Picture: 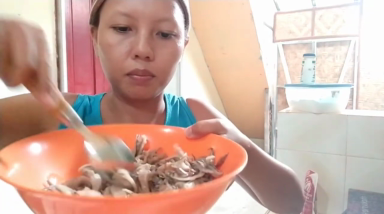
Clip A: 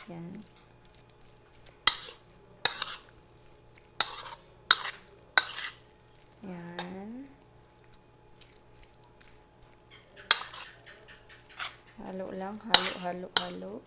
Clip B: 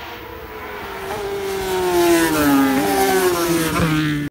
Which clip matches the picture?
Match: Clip A